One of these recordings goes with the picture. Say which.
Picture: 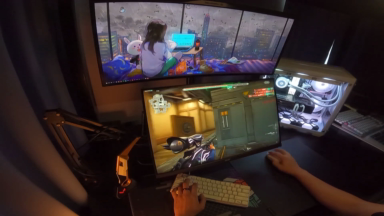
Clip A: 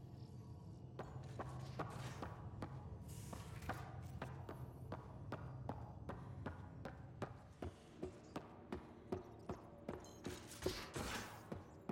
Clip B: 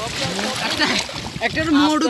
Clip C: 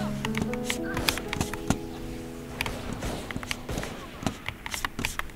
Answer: C